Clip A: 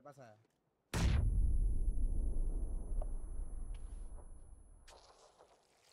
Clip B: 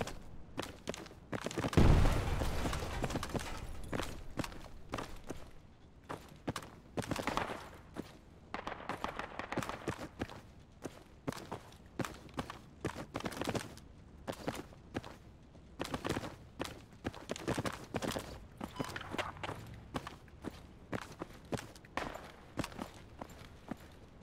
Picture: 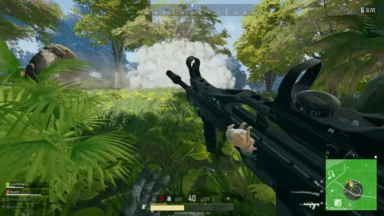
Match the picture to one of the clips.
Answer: A